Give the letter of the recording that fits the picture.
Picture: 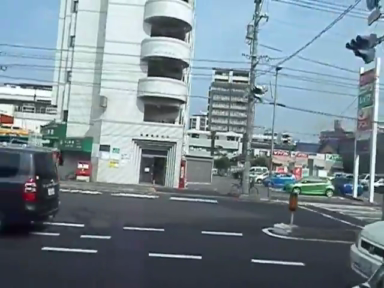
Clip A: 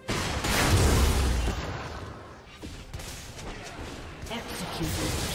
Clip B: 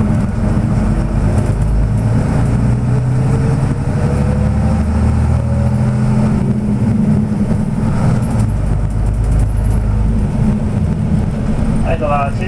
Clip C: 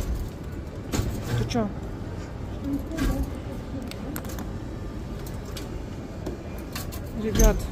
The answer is B